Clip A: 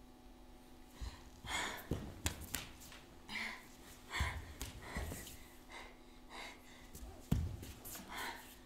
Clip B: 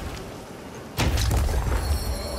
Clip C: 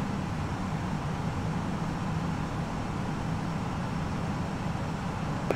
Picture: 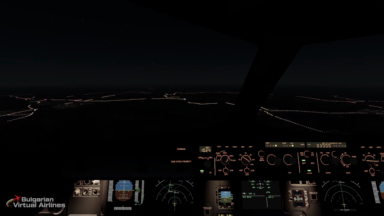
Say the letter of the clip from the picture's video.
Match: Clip C